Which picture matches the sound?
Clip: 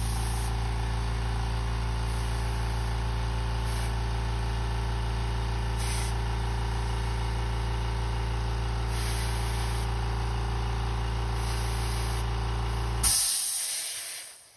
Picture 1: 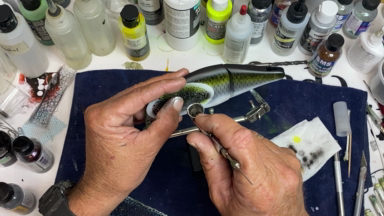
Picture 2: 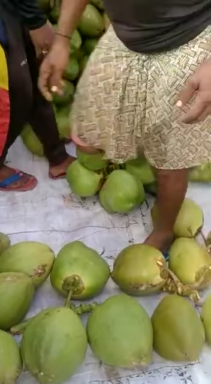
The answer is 1